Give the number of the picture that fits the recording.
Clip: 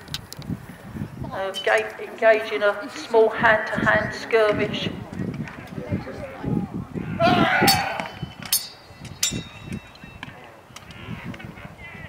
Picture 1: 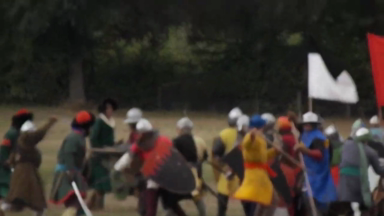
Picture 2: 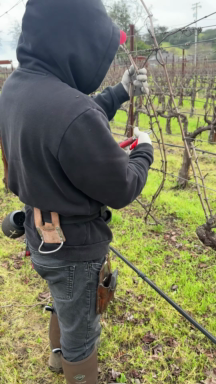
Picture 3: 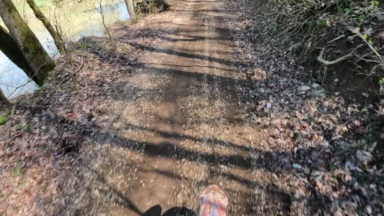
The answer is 1